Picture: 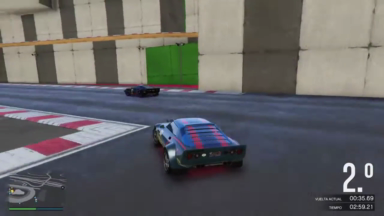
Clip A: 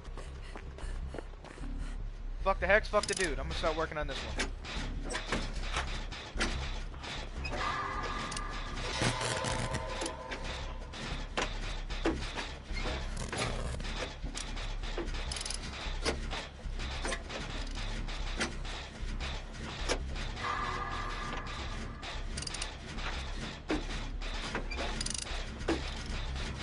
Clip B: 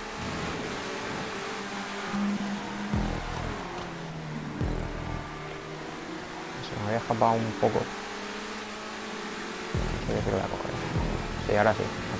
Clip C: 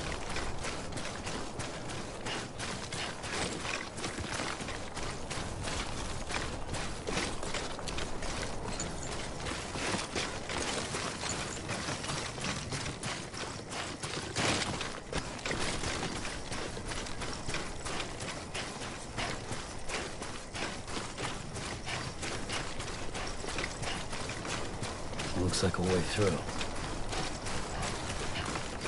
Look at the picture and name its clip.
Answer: B